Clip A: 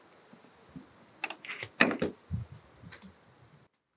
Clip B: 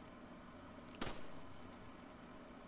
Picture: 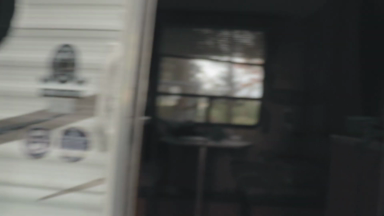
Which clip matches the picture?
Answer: A